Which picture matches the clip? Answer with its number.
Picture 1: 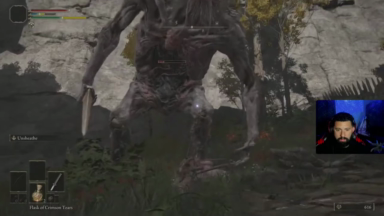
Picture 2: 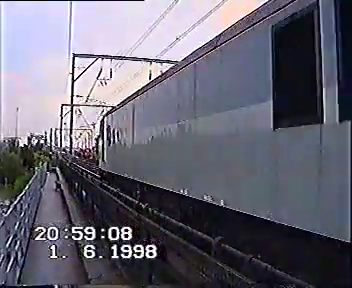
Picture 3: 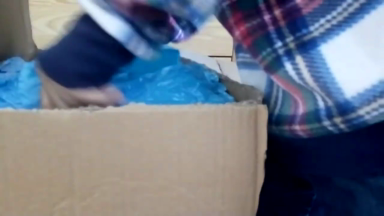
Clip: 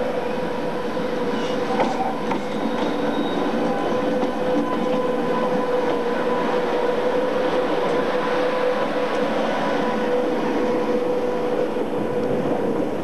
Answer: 2